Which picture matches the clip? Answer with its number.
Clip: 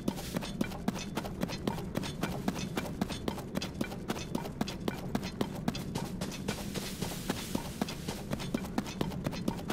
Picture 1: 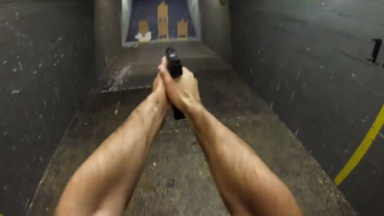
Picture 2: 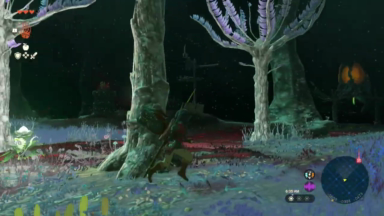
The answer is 2